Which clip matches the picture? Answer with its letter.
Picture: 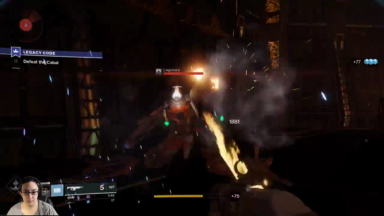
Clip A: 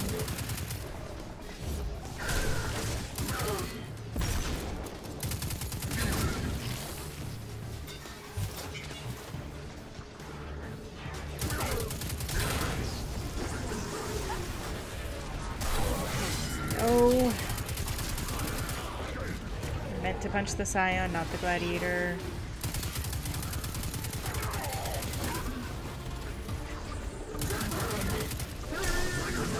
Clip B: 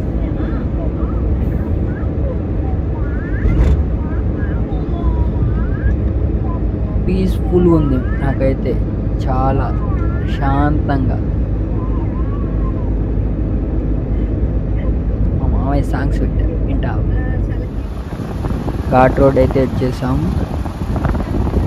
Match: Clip A